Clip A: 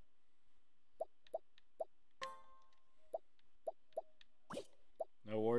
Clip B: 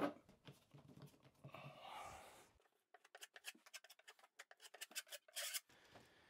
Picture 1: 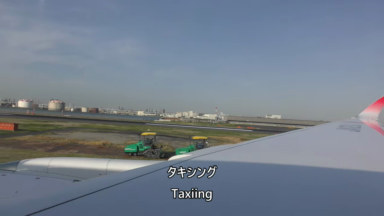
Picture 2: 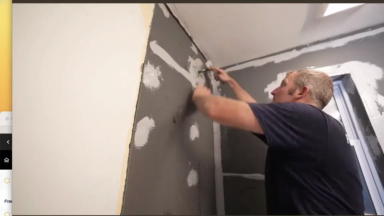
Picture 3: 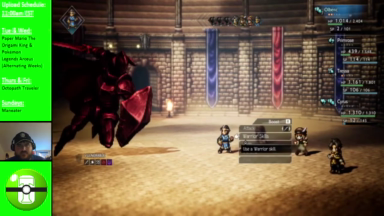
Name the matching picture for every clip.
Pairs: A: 3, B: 2